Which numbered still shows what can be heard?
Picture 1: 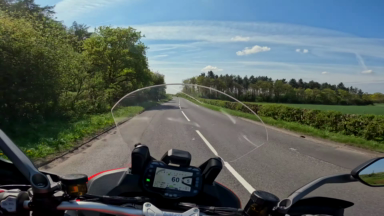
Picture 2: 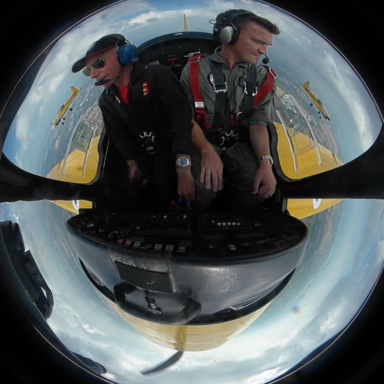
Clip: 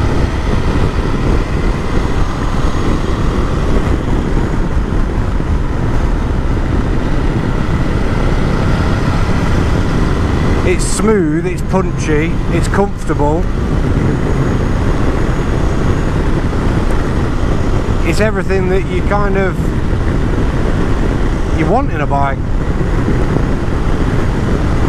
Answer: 1